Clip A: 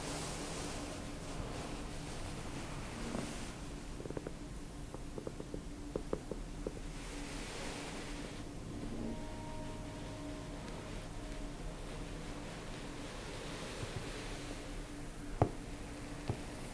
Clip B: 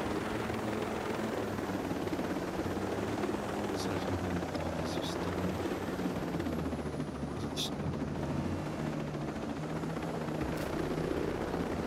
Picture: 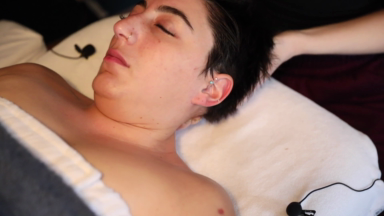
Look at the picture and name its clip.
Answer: A